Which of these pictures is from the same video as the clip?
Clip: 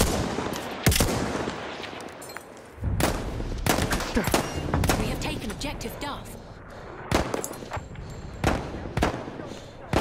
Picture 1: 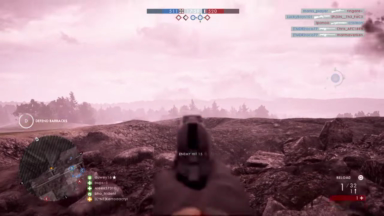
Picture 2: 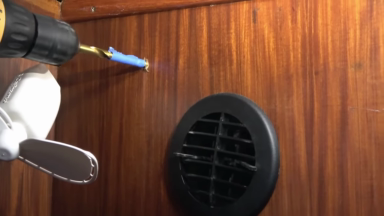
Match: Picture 1